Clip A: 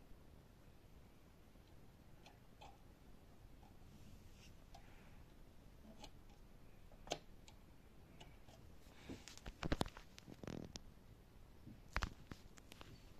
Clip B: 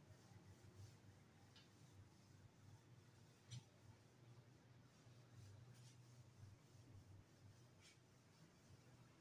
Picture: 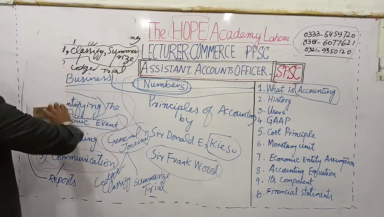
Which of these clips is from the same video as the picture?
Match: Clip B